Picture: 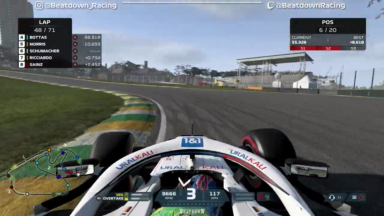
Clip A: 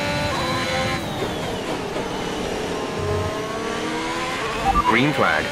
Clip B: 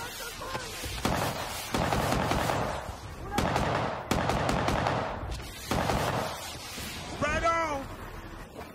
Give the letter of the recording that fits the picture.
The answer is A